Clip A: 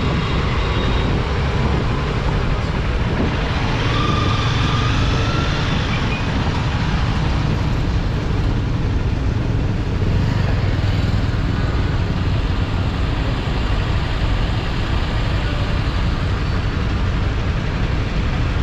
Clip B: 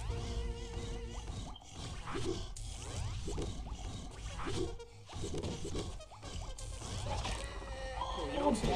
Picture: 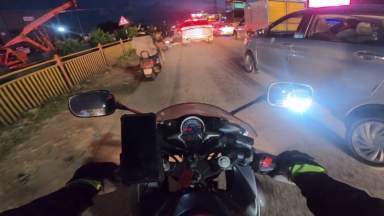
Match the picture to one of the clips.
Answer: A